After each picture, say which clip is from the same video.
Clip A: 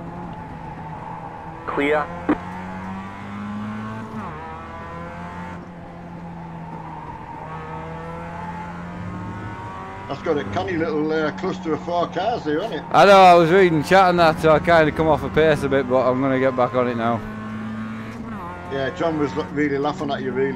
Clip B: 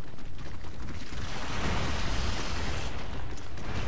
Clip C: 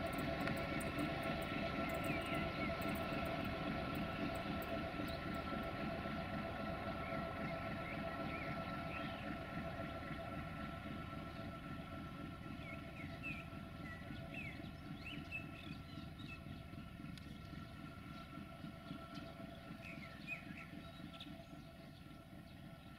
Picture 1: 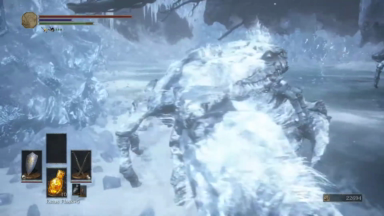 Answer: B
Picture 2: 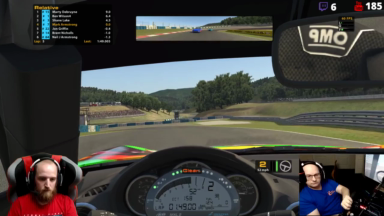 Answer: A